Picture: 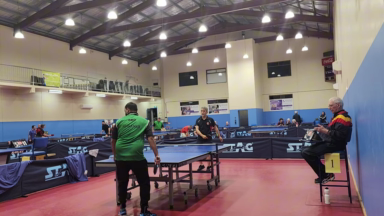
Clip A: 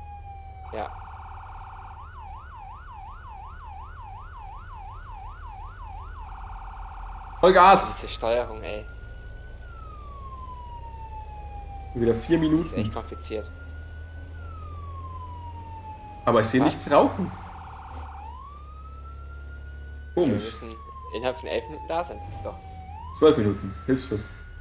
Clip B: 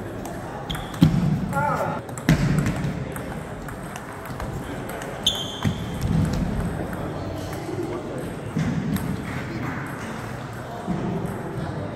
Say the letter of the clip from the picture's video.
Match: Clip B